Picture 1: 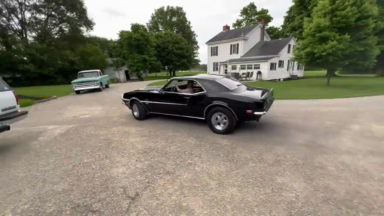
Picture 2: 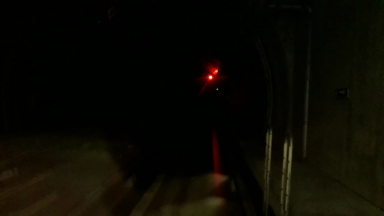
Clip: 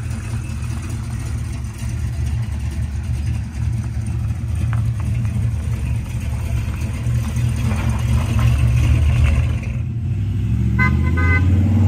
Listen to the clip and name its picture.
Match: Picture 1